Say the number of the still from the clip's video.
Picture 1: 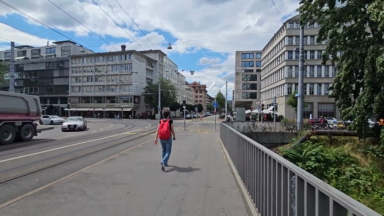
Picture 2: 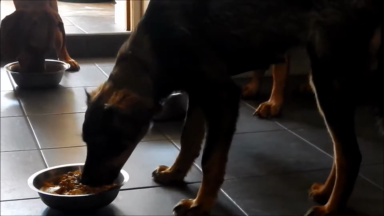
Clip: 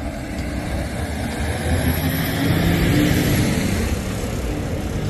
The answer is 1